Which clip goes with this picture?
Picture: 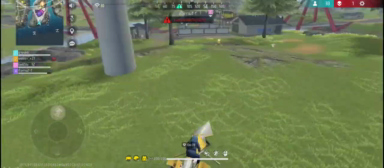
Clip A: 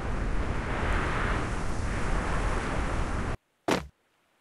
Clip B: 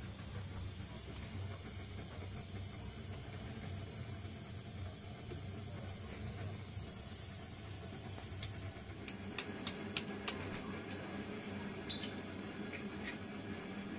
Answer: A